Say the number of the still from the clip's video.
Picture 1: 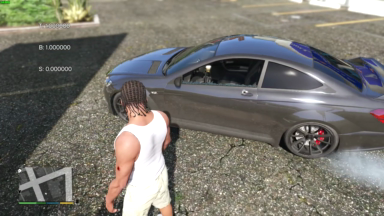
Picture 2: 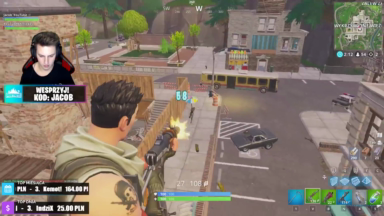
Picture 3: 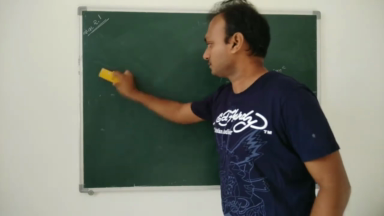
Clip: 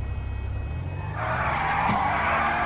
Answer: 1